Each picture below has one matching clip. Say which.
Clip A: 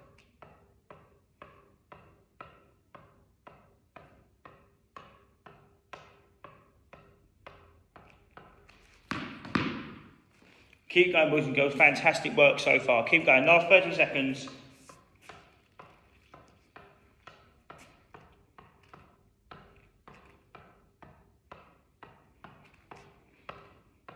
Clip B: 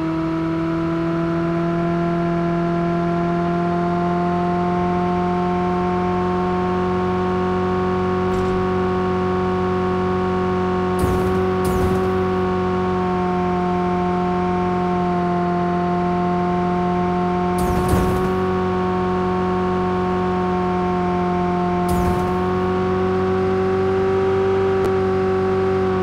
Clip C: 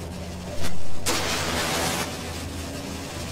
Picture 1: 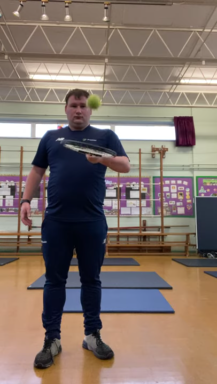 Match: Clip A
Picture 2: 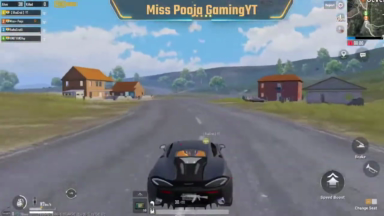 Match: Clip B